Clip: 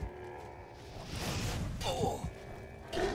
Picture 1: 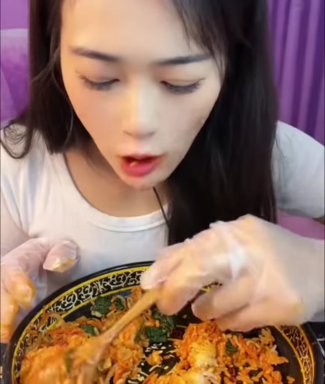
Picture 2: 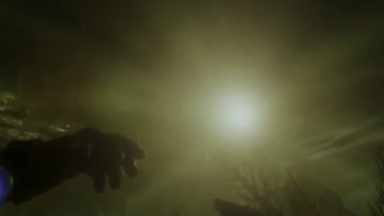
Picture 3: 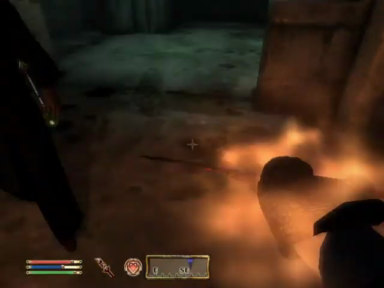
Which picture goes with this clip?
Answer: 3